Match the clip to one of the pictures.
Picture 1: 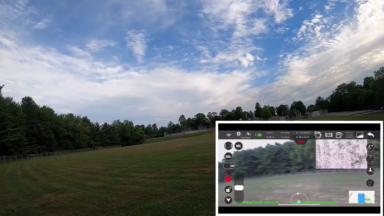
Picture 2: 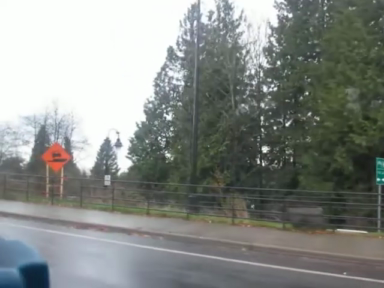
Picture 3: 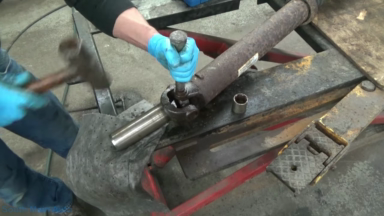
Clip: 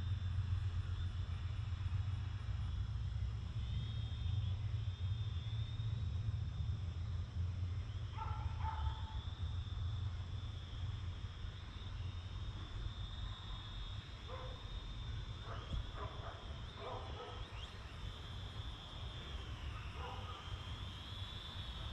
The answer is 1